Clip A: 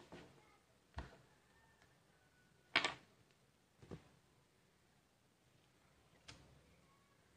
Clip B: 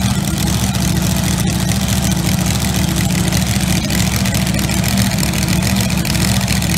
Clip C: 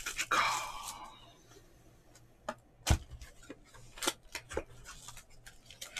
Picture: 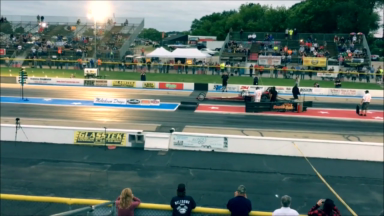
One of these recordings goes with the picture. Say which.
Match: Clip B